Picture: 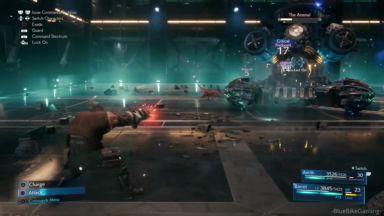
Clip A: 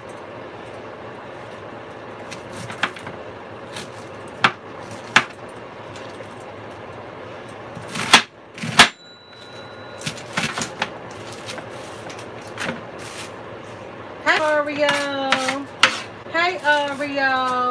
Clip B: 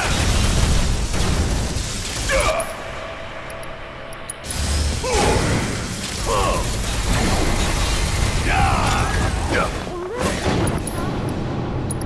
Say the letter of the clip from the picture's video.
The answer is B